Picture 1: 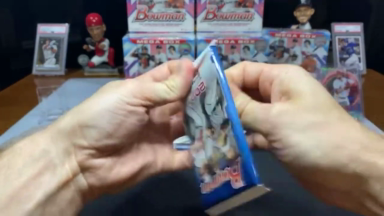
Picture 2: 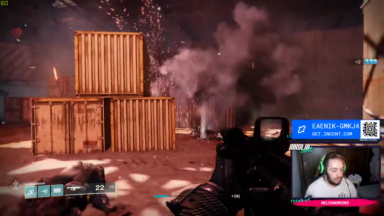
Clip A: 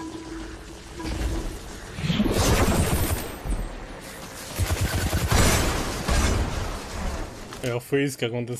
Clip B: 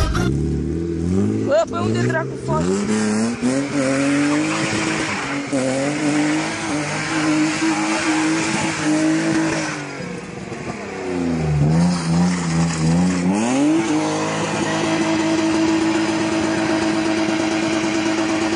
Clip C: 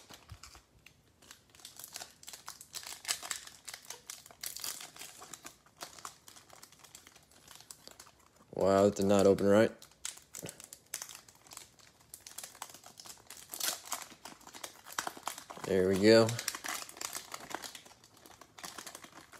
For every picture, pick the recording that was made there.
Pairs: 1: C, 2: A